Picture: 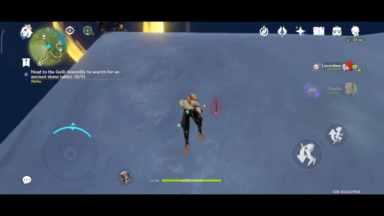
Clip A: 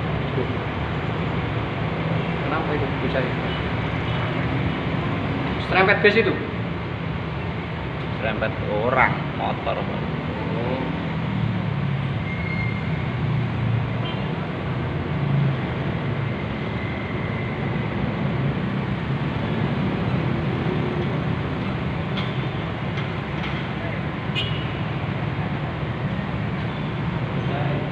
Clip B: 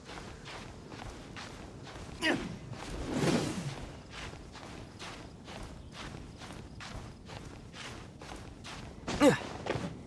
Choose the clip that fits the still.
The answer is B